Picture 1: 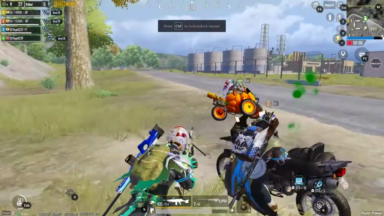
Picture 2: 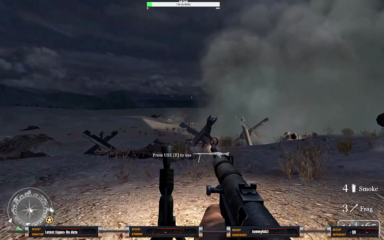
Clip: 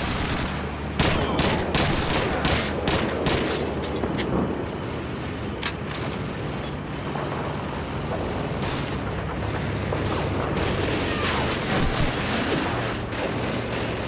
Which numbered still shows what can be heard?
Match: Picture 2